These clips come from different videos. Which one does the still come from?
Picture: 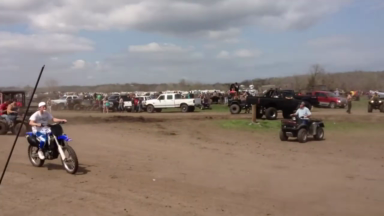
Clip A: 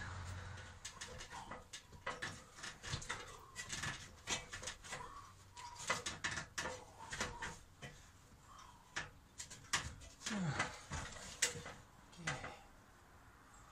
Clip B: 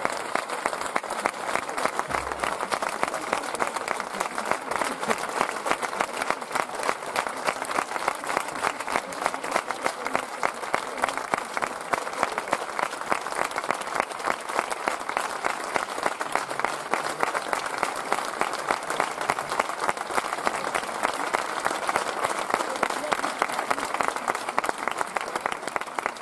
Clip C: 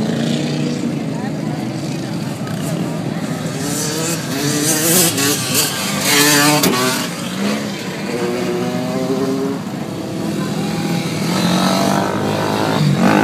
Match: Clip C